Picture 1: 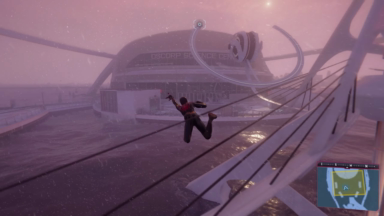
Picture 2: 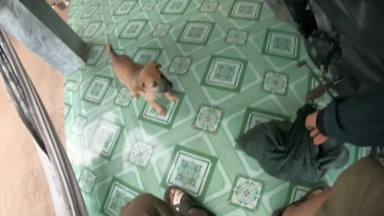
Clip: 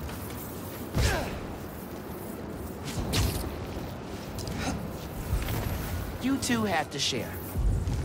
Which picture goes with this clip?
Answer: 1